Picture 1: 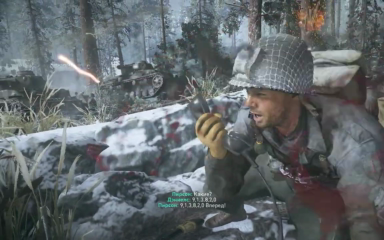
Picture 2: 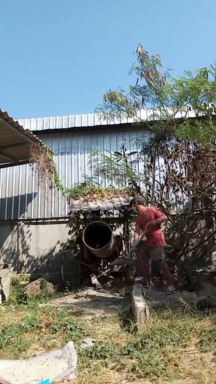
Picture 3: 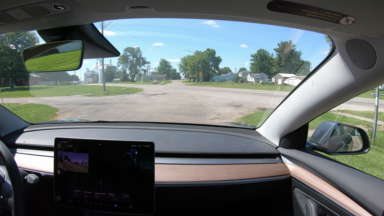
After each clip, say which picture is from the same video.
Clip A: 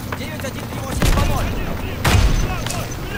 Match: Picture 1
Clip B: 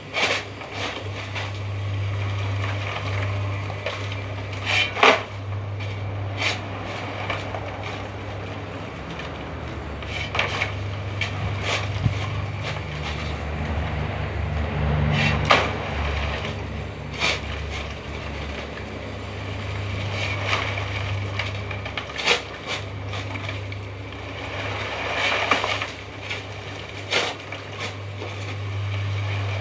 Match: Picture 2